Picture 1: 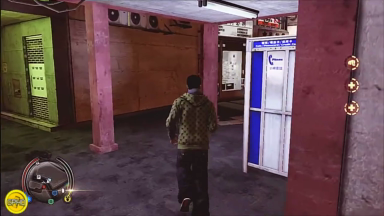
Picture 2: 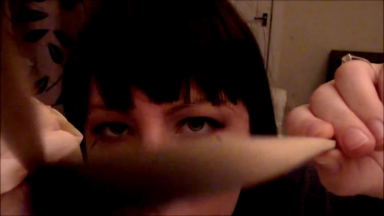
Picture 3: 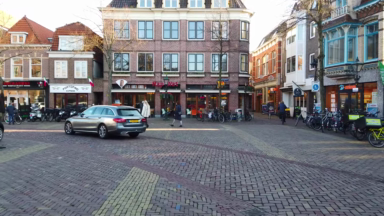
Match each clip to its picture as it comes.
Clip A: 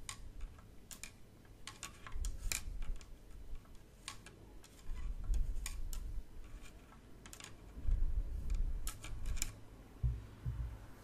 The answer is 2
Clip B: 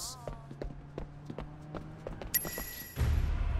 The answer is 1